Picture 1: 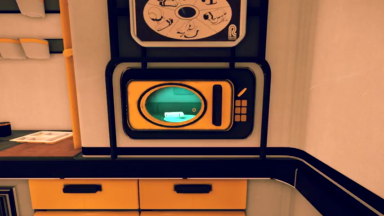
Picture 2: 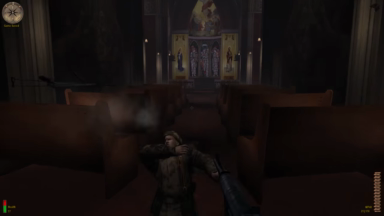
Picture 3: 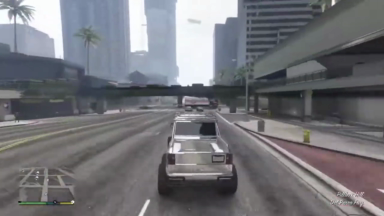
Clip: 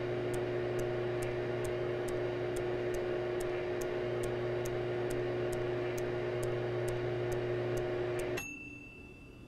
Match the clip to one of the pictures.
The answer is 1